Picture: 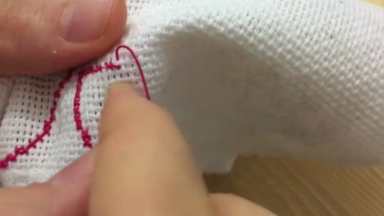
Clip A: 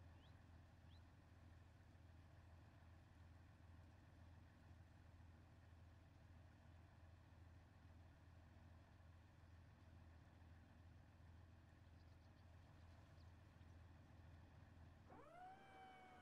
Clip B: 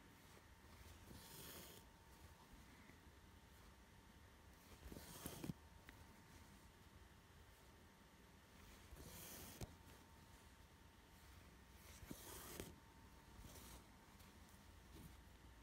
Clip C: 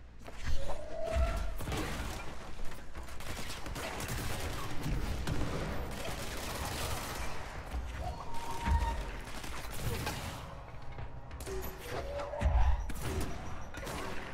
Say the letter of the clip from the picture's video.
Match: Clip B